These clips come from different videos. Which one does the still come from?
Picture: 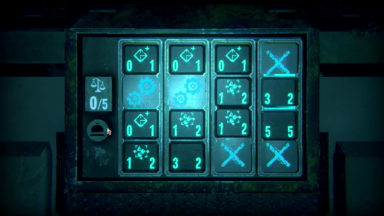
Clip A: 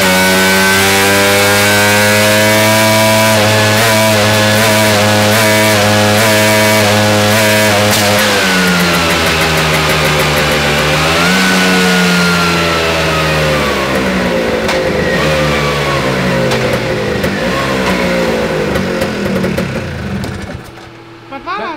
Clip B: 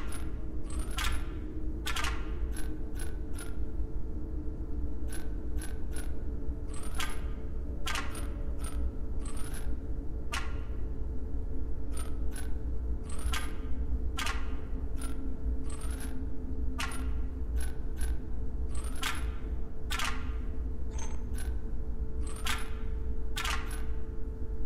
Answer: B